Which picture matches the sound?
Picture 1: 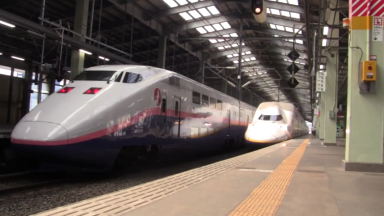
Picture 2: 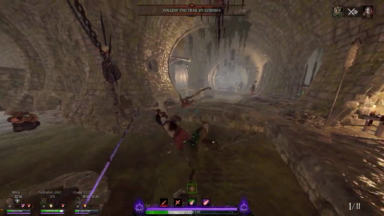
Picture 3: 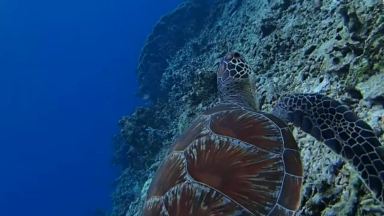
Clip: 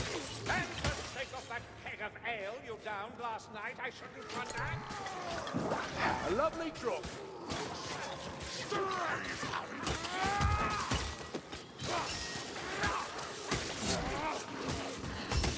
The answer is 2